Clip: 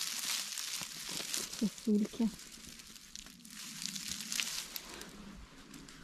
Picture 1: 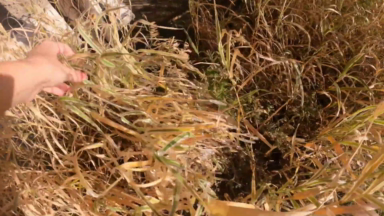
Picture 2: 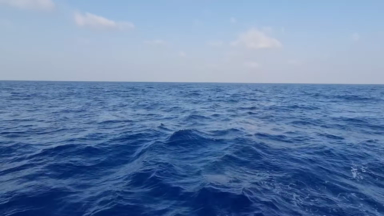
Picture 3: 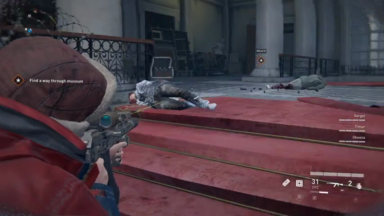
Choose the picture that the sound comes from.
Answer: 1